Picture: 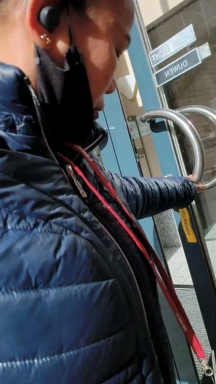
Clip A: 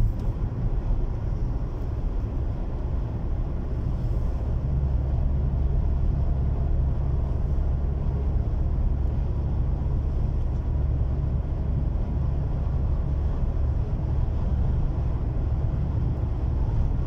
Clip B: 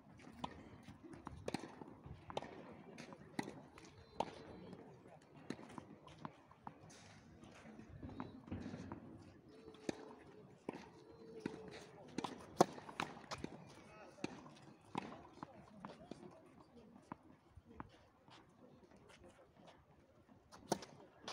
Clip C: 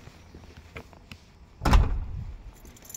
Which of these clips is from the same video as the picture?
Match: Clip C